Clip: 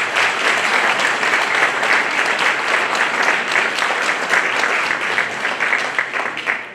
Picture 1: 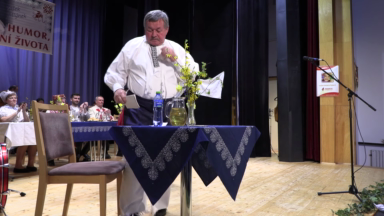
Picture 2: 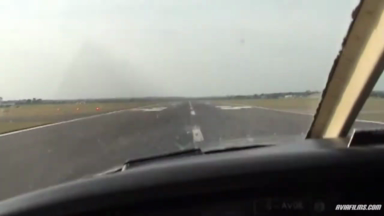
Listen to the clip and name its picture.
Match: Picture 1